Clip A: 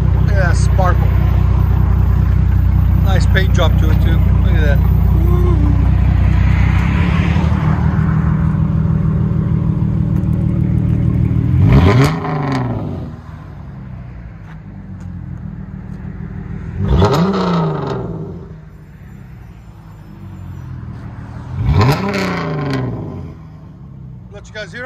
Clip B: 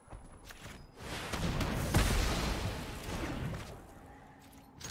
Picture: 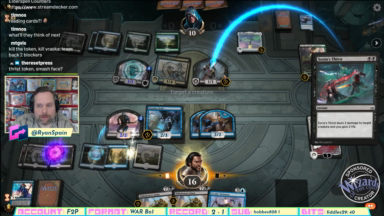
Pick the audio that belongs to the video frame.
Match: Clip B